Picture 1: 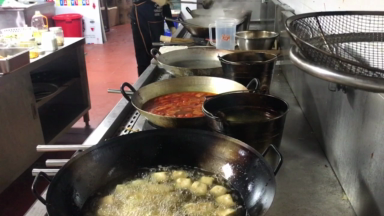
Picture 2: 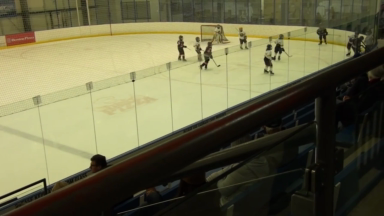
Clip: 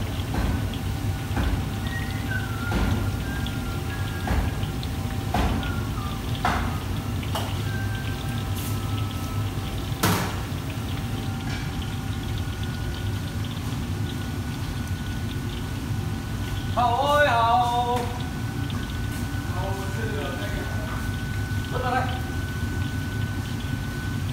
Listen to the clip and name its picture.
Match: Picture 1